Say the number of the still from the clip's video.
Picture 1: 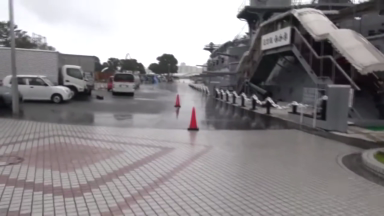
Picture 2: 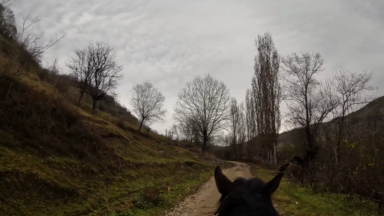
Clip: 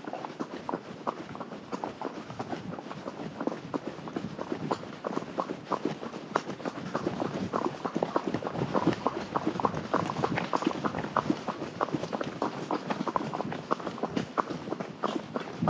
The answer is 2